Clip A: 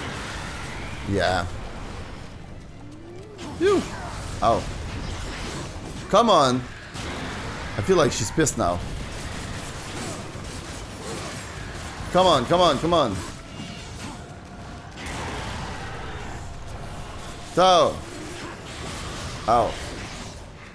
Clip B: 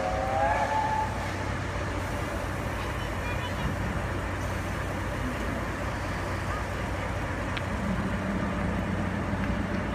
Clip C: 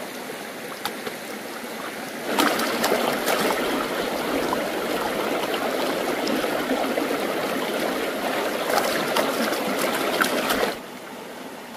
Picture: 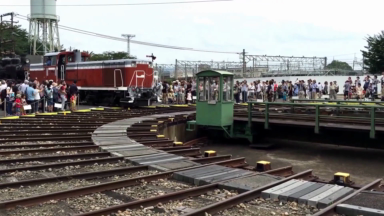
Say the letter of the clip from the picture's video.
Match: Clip B